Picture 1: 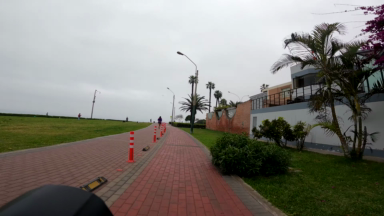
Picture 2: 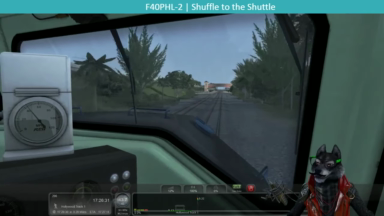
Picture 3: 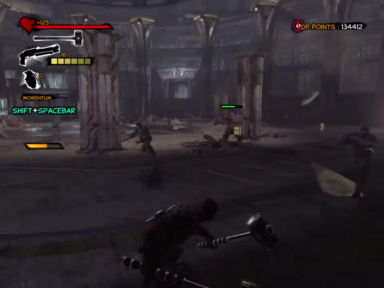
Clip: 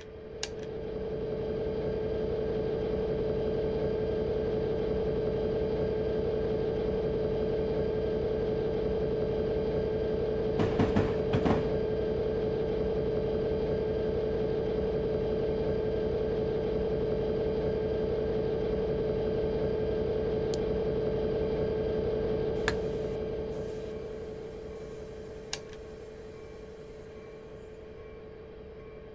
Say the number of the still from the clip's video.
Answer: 2